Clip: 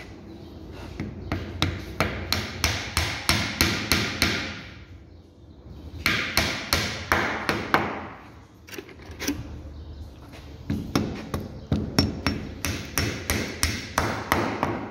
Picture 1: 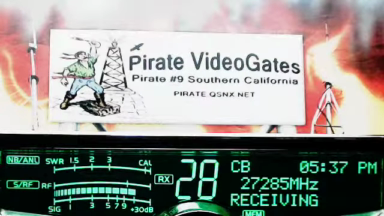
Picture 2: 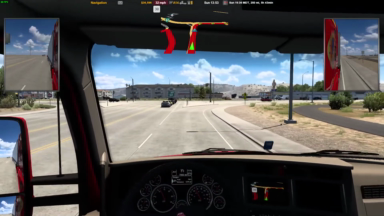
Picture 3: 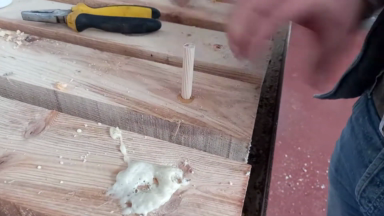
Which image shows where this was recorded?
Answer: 3